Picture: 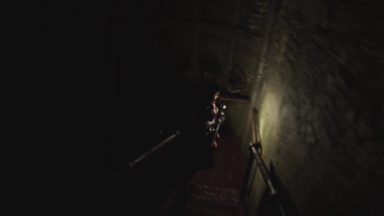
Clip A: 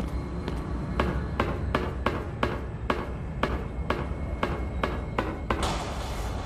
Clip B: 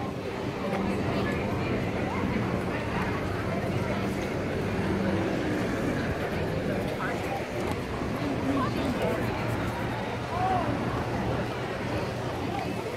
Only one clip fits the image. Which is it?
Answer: A